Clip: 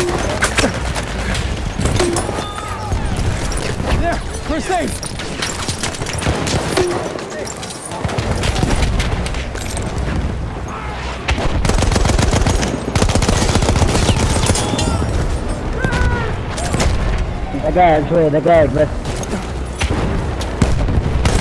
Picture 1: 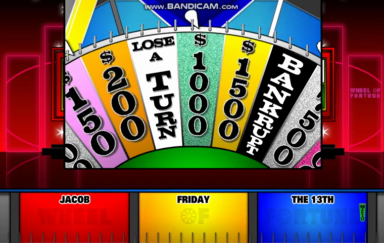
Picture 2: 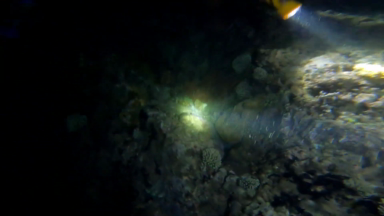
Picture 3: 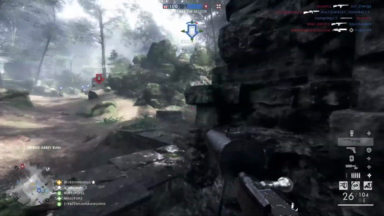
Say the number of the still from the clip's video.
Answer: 3